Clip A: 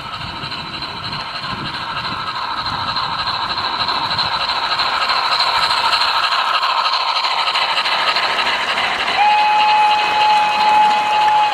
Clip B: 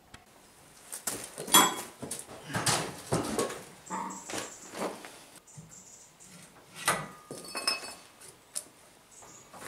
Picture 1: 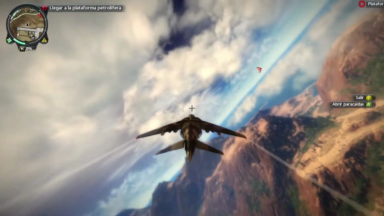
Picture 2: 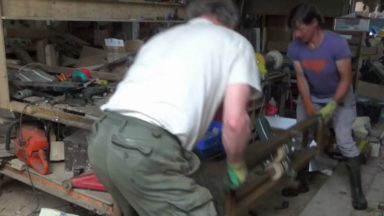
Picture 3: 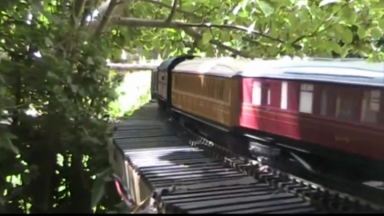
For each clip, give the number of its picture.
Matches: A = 3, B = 2